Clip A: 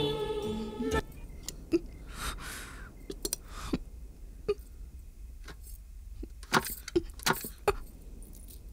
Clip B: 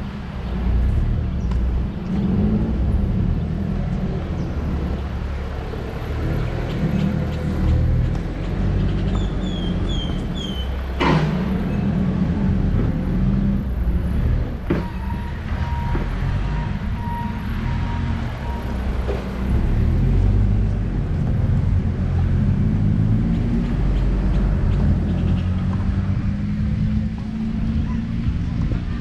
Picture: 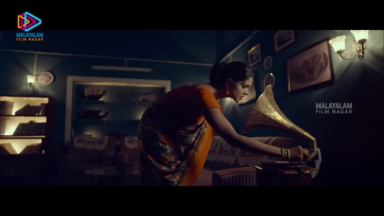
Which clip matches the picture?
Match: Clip A